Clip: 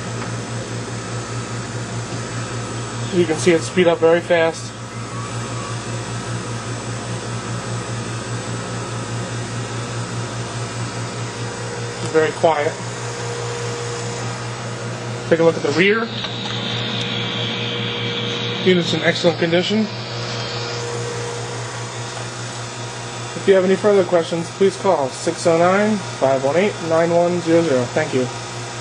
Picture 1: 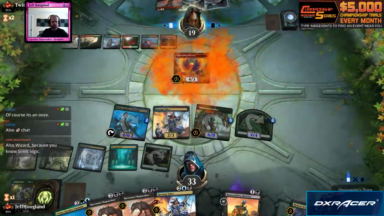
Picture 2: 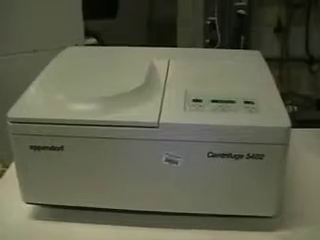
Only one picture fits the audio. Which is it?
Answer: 2